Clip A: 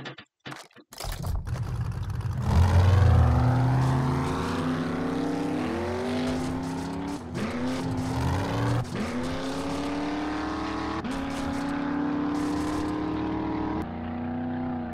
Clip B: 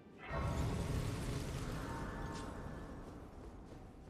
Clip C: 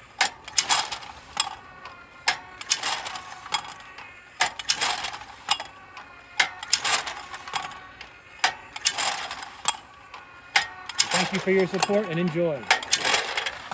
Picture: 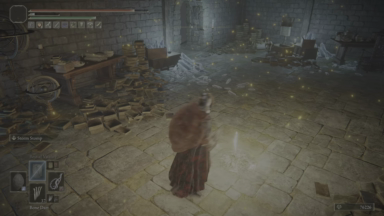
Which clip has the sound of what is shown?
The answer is B